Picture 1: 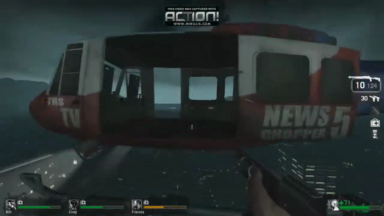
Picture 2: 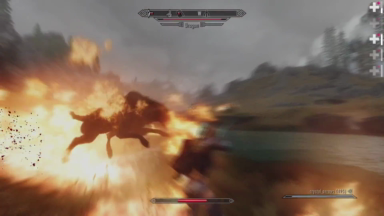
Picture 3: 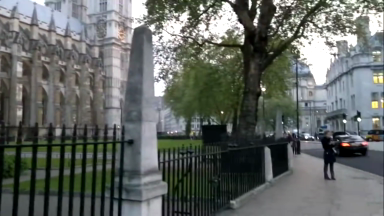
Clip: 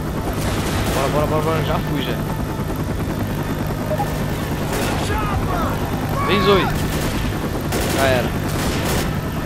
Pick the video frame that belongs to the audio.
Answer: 1